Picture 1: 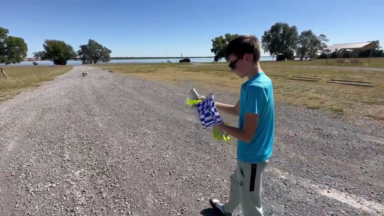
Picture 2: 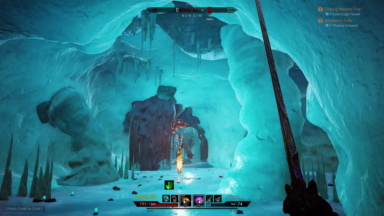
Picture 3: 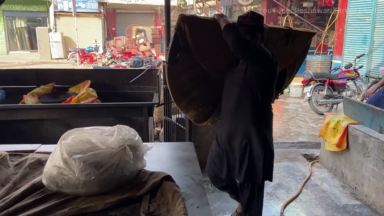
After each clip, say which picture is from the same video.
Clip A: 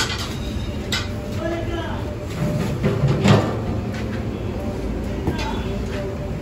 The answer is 3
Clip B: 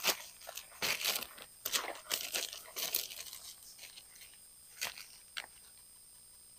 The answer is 1